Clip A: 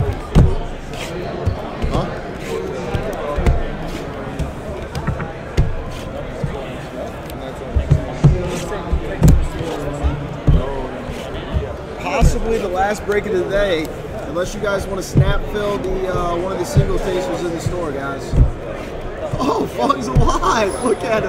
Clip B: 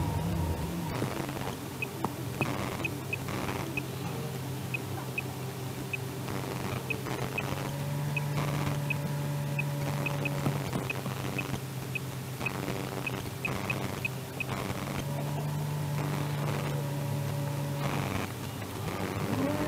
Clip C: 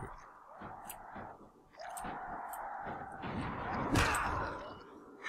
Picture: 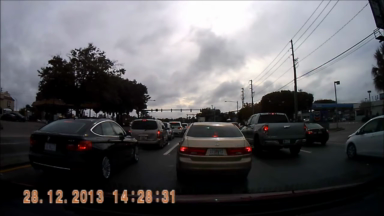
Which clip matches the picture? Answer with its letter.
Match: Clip B